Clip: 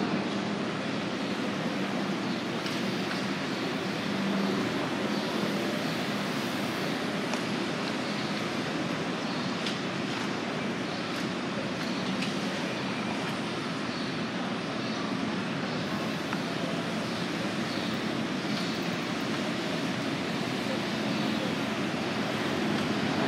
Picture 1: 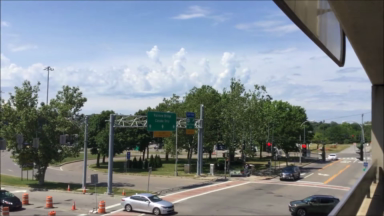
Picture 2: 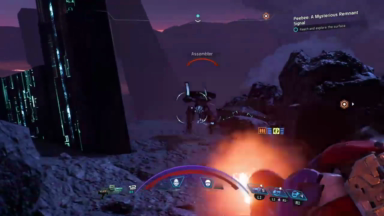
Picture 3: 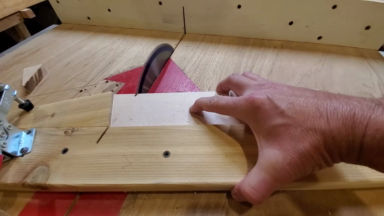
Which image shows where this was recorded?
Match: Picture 1